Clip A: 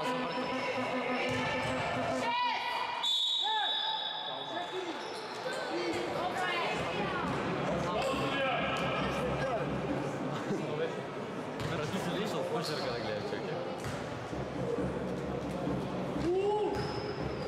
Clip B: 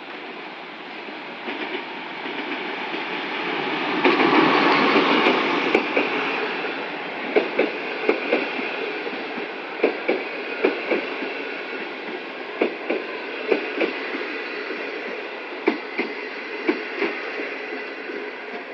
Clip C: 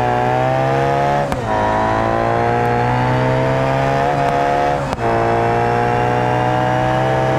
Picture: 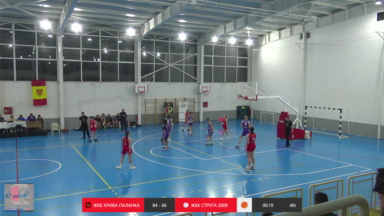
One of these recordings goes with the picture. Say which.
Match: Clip A